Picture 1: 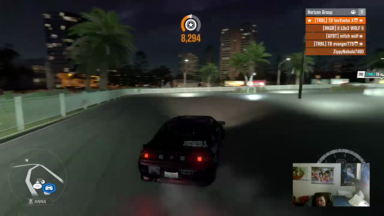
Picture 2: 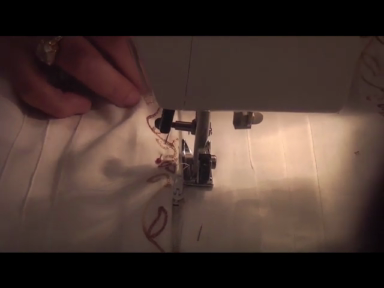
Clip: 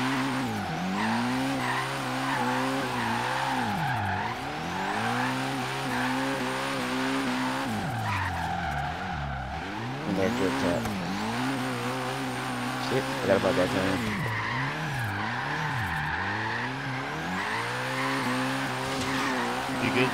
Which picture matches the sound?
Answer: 1